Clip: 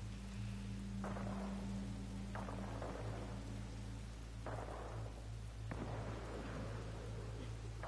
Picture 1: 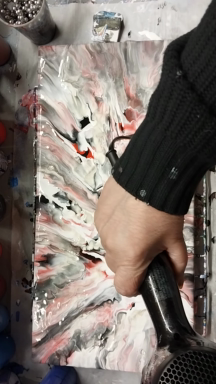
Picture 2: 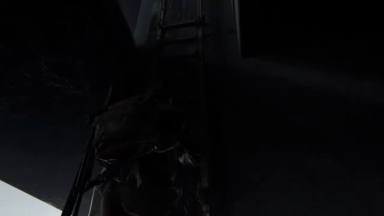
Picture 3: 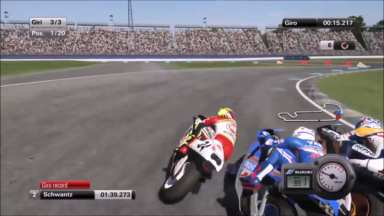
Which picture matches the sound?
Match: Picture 2